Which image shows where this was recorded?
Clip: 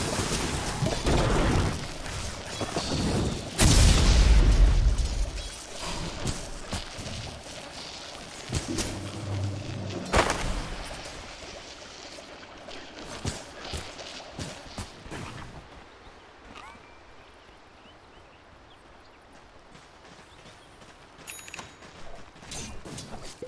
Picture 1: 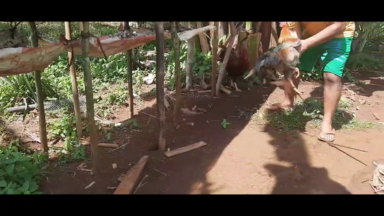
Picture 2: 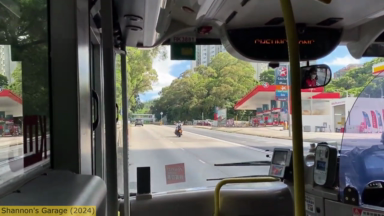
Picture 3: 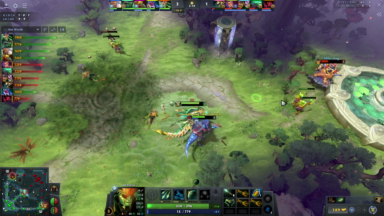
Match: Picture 3